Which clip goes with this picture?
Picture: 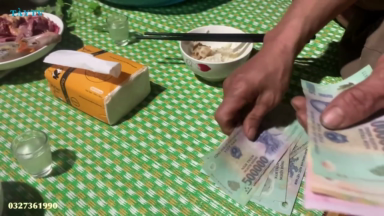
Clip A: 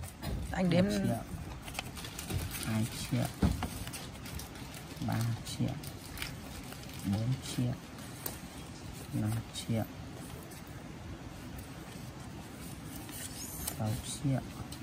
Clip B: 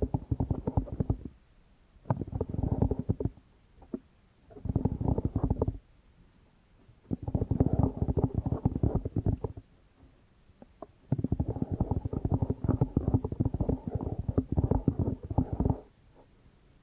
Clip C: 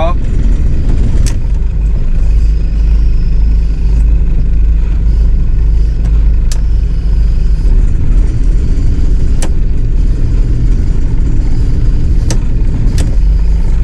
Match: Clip A